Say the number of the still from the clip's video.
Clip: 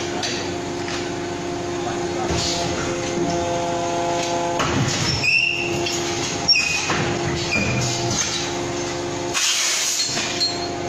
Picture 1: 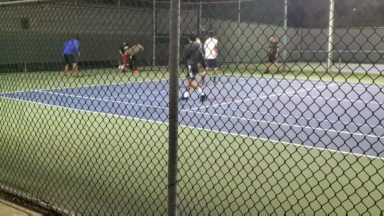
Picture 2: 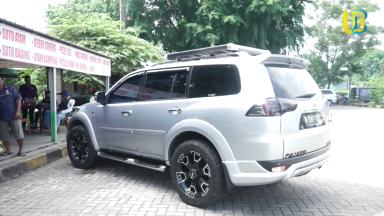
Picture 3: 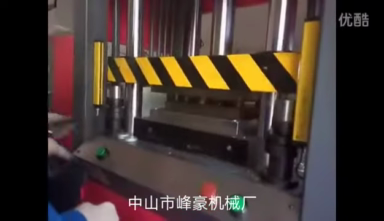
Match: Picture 3